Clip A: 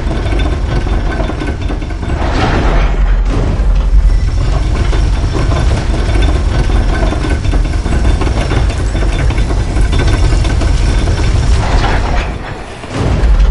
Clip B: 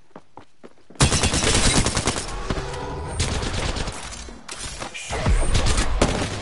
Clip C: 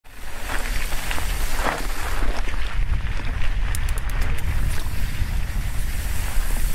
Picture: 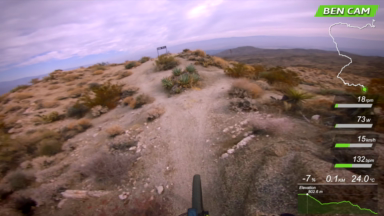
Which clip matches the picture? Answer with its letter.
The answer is C